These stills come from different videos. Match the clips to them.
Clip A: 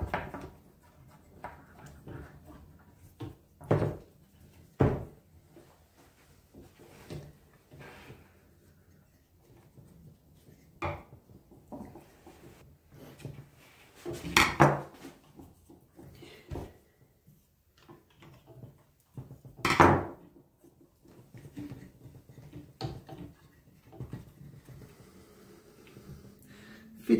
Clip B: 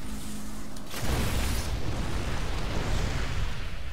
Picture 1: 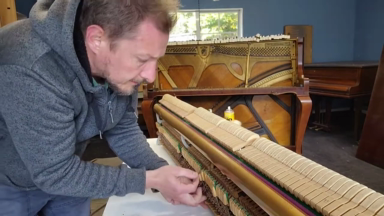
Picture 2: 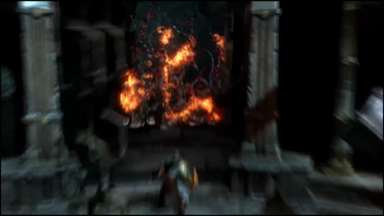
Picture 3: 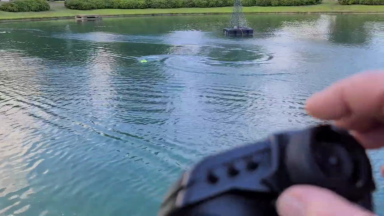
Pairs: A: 1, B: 2